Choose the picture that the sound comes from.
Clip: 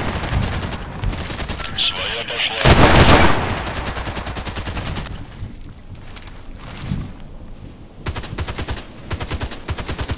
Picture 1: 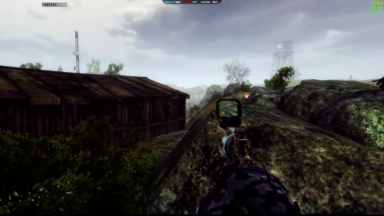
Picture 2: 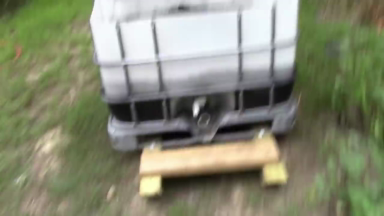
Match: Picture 1